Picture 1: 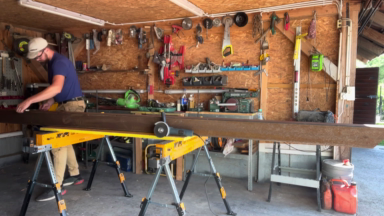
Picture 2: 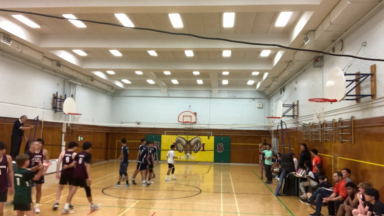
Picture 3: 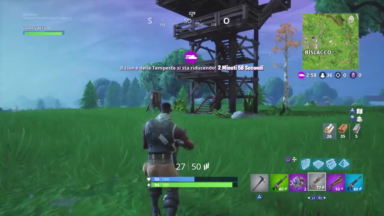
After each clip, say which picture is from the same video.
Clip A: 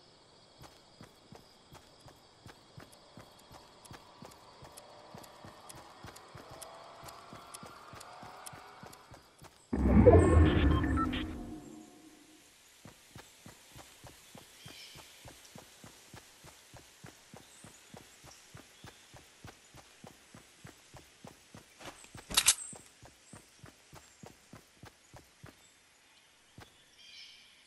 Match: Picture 3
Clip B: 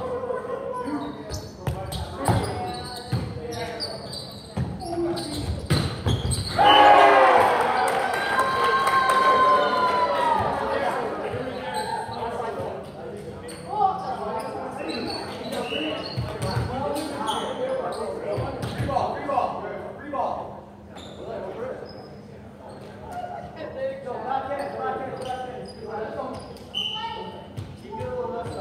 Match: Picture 2